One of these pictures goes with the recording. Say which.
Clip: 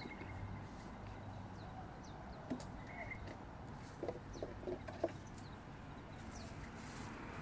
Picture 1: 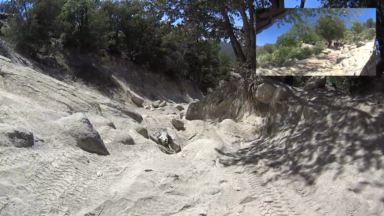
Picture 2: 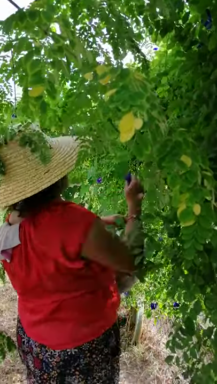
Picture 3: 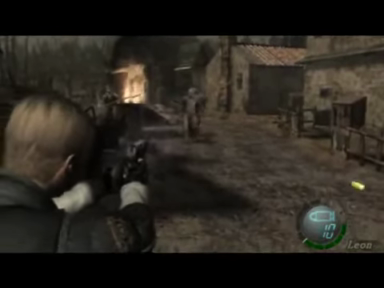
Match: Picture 2